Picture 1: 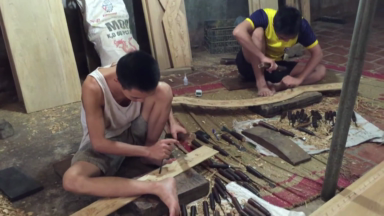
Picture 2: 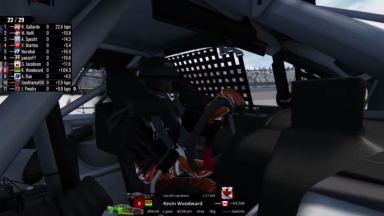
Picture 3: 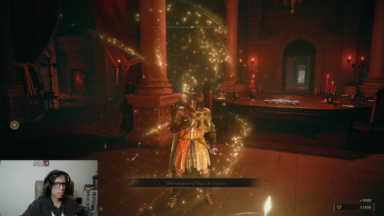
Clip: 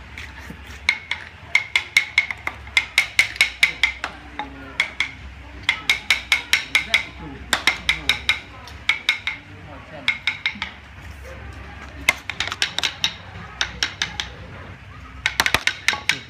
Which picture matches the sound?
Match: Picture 1